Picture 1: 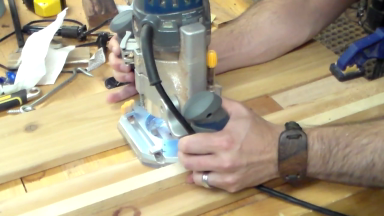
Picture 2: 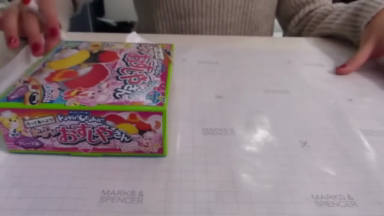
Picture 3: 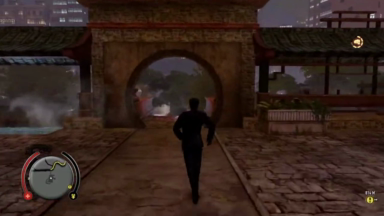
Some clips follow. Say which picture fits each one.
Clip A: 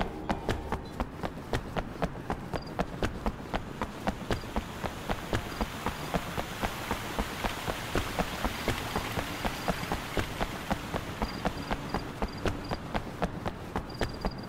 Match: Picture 3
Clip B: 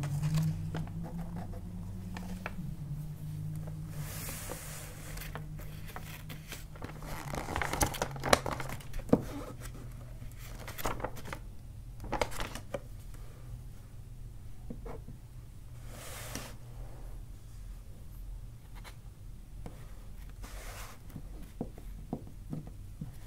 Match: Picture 2